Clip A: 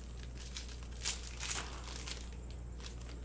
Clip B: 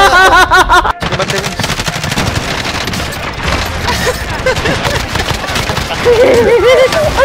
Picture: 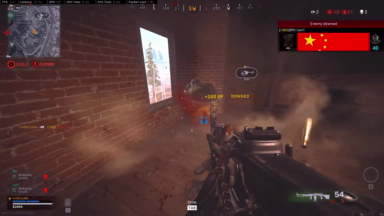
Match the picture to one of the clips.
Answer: B